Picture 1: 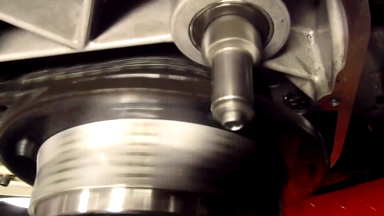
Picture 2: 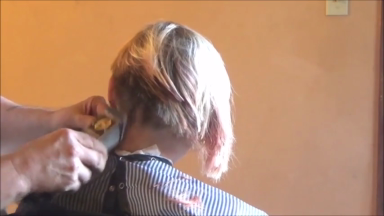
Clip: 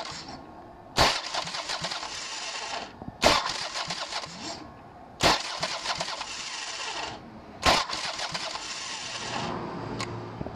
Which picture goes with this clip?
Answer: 1